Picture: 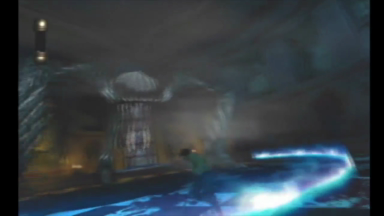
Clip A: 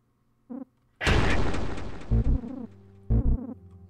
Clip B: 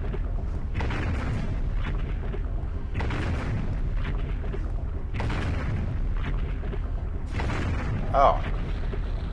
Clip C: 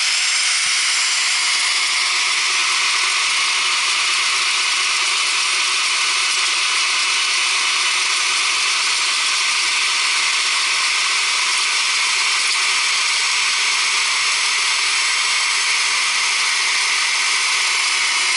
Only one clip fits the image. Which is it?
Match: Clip B